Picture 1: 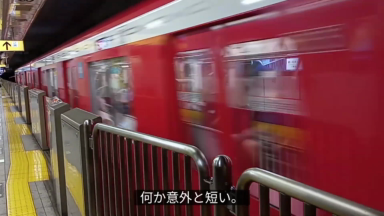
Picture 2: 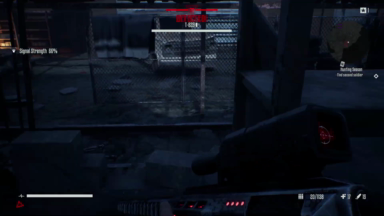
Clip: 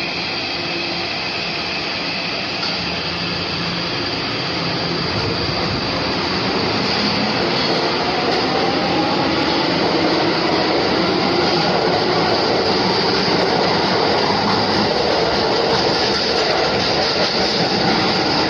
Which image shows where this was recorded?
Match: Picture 1